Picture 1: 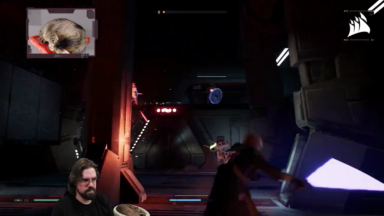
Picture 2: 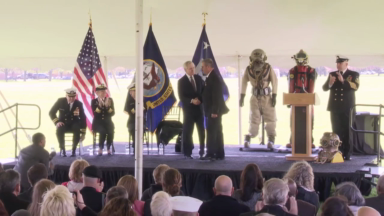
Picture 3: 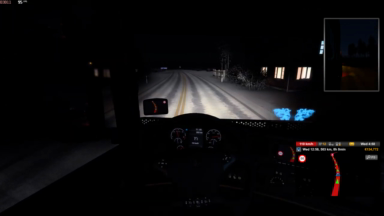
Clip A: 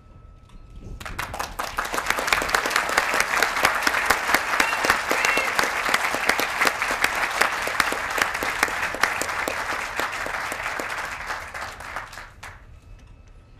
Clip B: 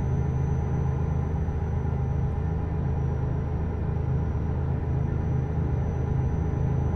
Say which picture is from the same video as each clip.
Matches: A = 2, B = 3